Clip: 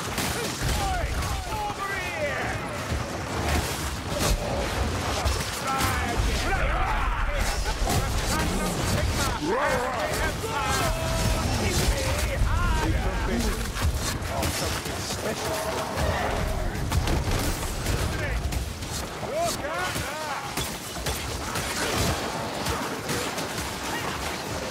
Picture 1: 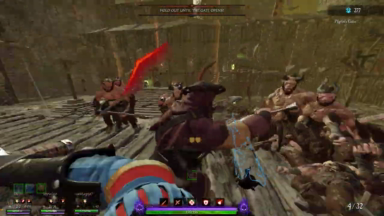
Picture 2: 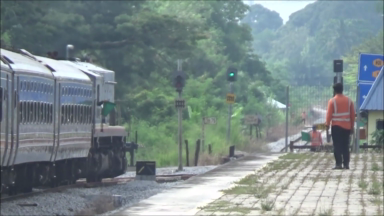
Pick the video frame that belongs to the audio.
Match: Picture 1